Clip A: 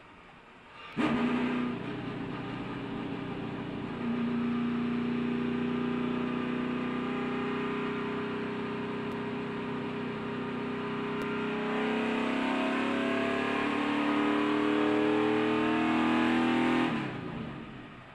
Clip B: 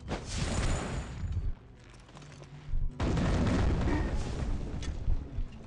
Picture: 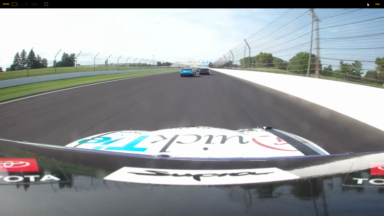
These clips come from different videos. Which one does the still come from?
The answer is A